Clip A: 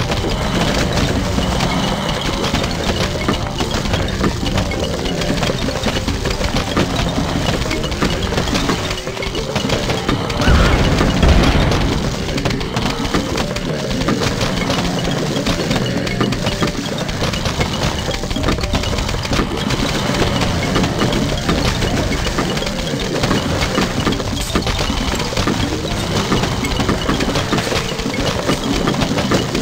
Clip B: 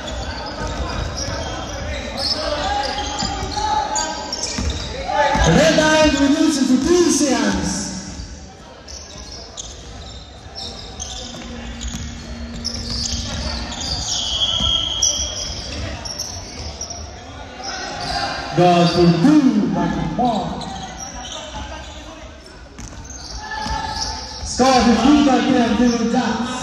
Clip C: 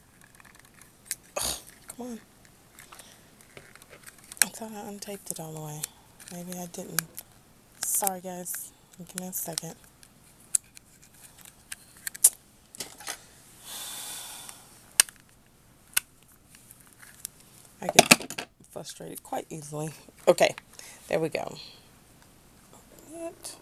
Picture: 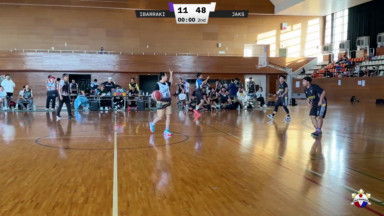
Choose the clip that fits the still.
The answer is B